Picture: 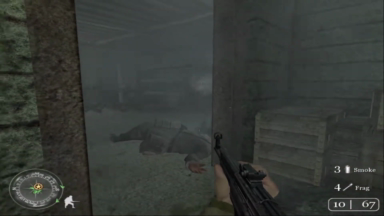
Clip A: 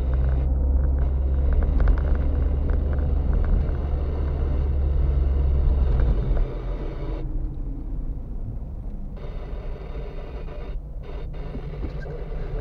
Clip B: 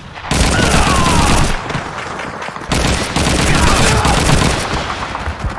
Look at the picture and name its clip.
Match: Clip B